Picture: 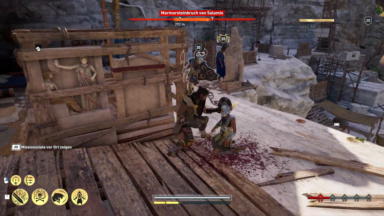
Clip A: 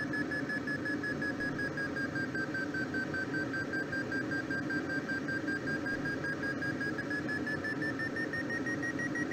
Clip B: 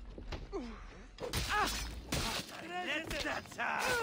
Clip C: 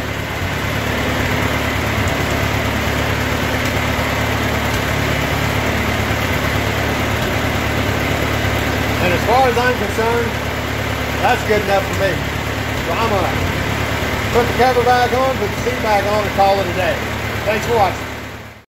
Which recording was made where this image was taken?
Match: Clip B